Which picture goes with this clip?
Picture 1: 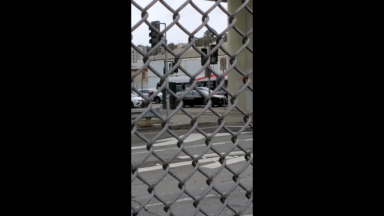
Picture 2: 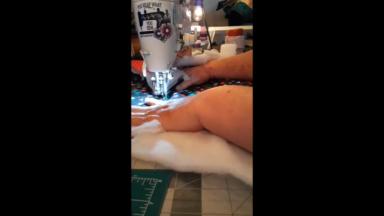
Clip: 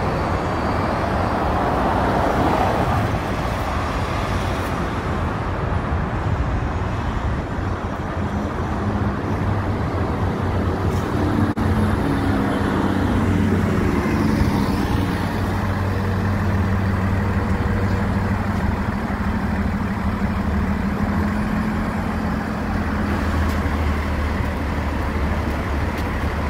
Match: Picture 1